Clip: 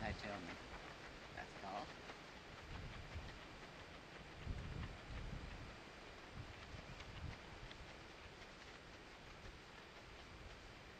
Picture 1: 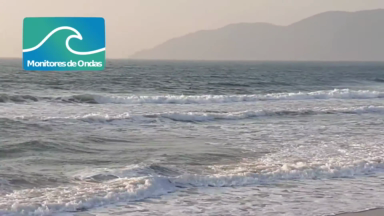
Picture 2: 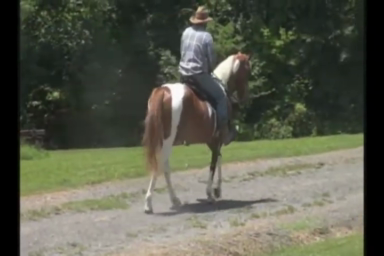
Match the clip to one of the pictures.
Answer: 2